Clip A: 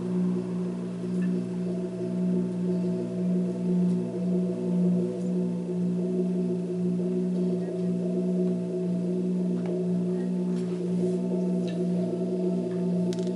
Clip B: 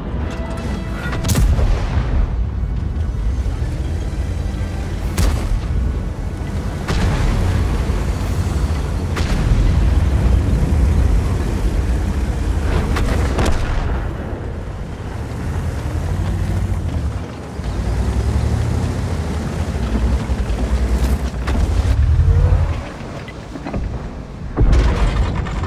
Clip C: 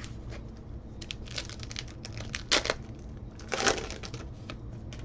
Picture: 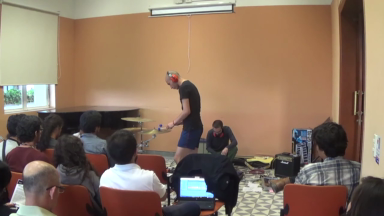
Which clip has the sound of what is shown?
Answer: A